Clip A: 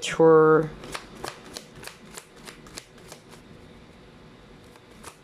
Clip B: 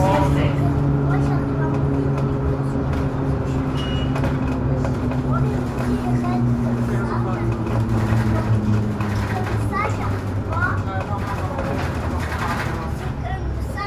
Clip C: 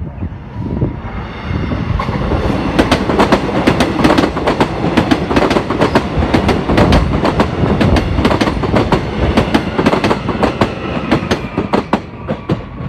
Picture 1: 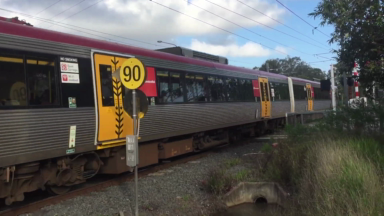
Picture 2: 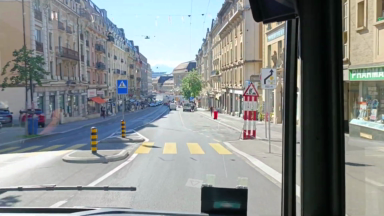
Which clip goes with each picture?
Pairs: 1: C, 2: B